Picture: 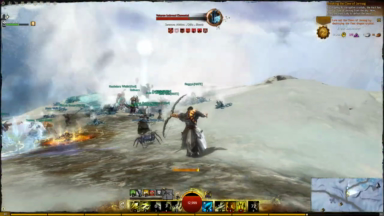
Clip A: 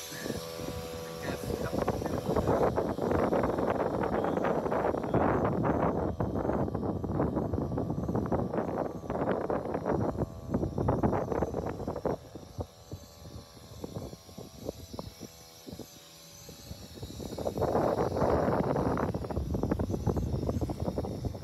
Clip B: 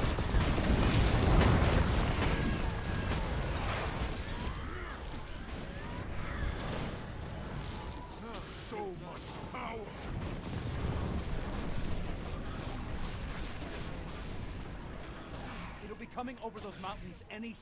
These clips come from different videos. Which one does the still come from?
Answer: B